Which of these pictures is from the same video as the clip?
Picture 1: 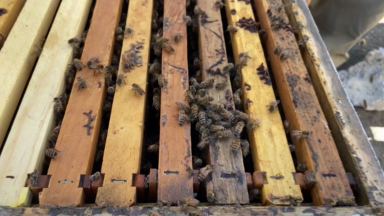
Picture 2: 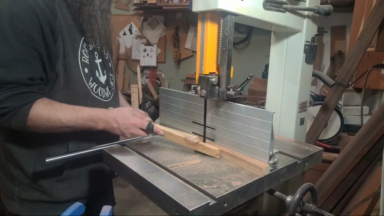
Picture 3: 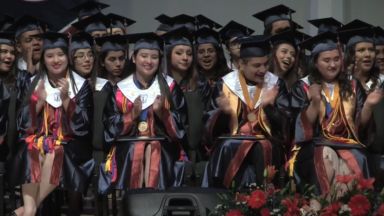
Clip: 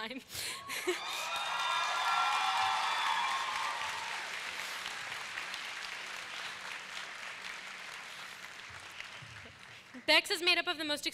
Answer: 3